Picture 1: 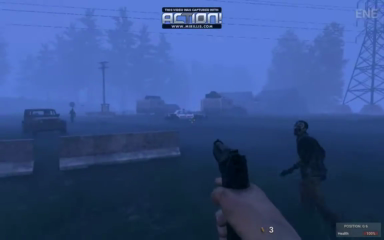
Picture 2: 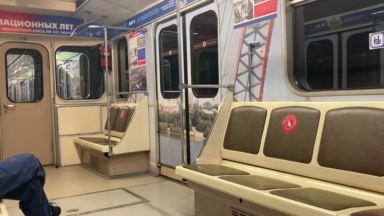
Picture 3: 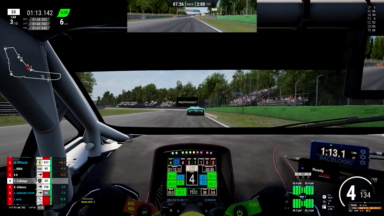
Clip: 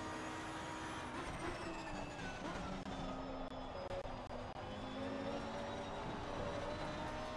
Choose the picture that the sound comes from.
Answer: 3